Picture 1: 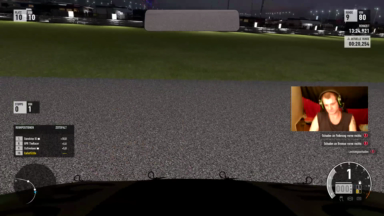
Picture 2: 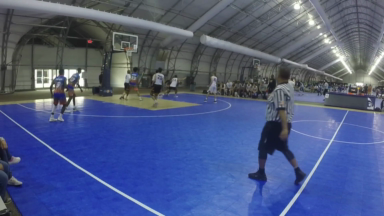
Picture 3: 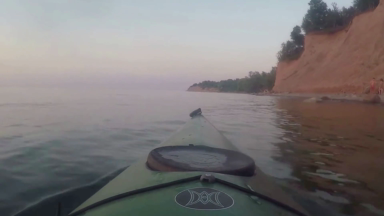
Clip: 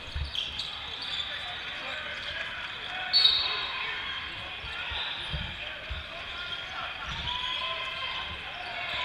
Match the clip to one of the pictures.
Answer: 2